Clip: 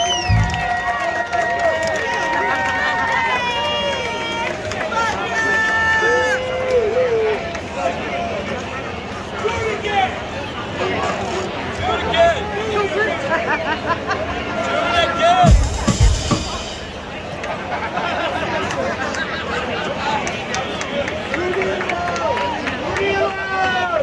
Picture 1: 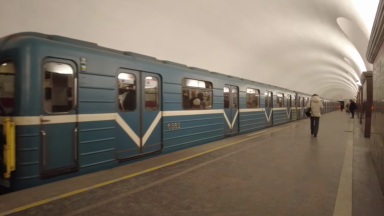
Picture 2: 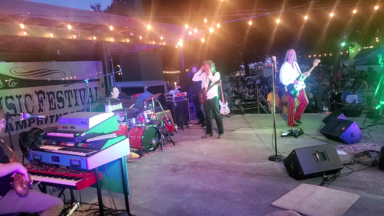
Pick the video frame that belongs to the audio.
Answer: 2